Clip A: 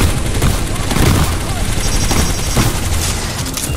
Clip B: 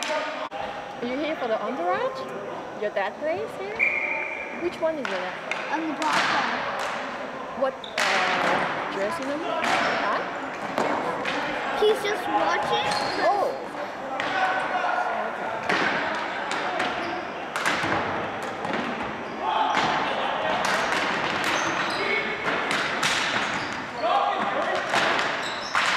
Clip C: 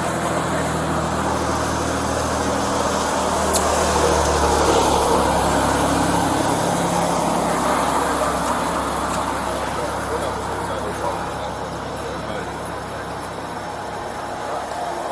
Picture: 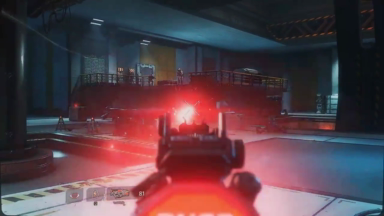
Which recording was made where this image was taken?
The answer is A